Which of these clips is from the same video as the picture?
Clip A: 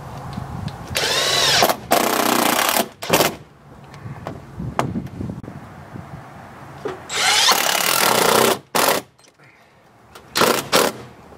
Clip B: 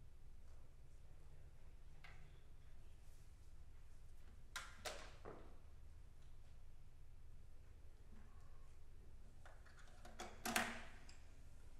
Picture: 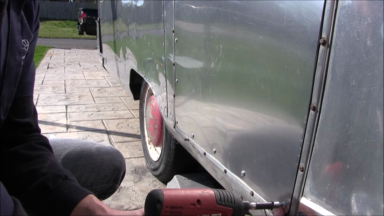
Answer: A